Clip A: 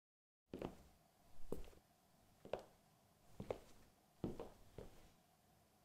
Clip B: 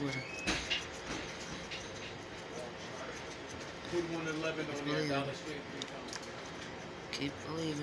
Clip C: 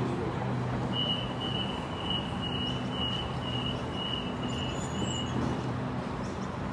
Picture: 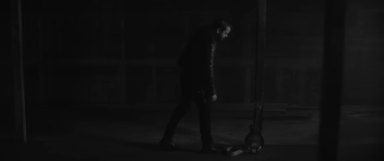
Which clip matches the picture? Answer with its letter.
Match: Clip A